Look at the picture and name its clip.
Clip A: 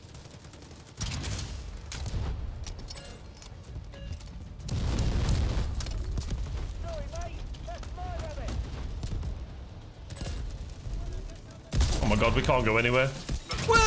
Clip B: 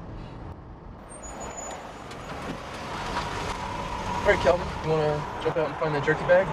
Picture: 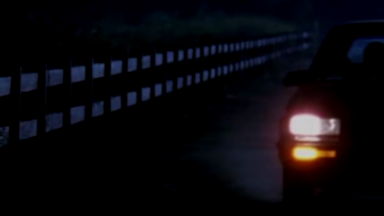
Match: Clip B